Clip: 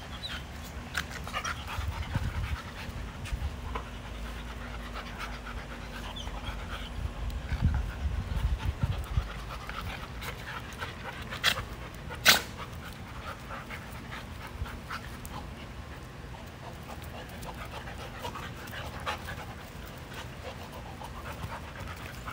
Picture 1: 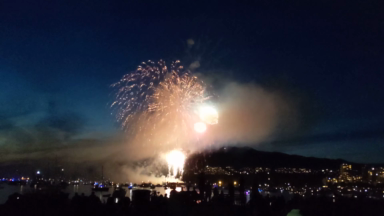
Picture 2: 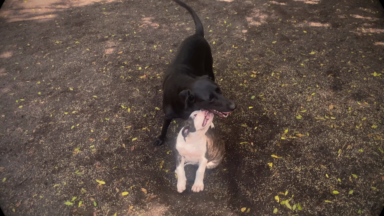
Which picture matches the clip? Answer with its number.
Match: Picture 2